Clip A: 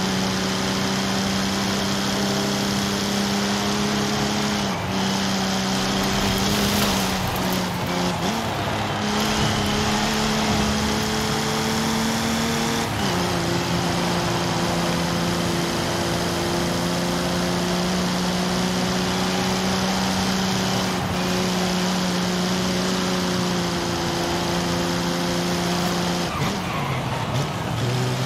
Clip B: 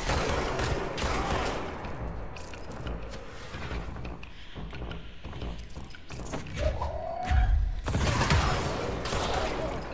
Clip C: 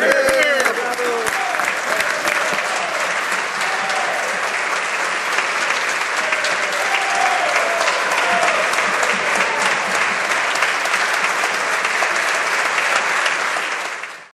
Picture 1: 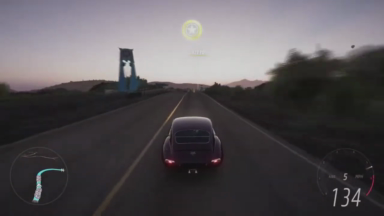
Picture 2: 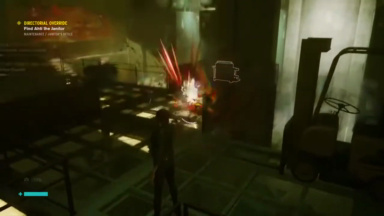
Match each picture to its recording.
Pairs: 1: A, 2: B